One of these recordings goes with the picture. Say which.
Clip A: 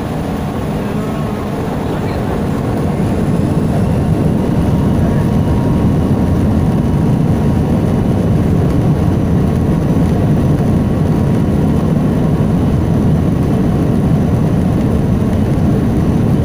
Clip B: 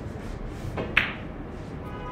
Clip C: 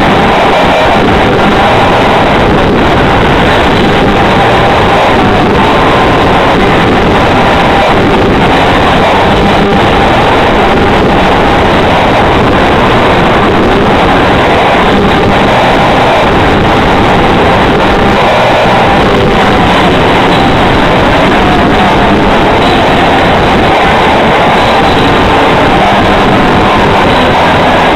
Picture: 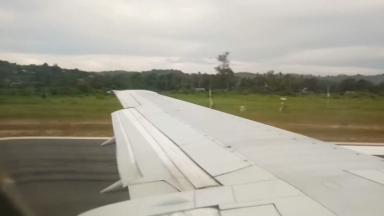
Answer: A